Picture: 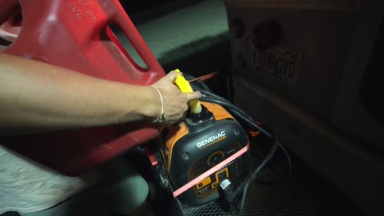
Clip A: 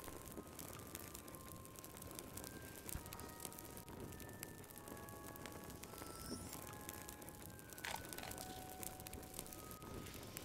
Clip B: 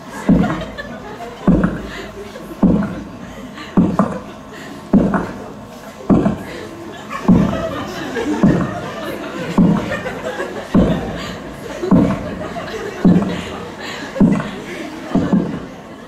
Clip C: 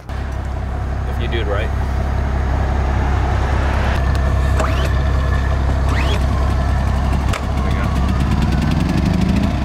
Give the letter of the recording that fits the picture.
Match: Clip C